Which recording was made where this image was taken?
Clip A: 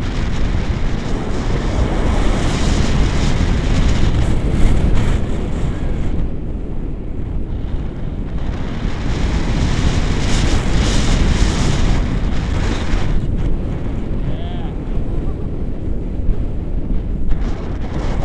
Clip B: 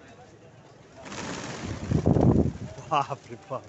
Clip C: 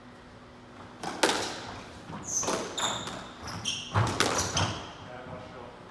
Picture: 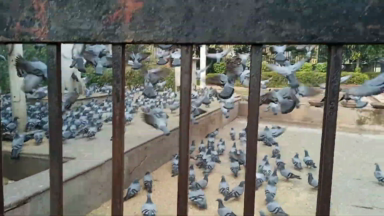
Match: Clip B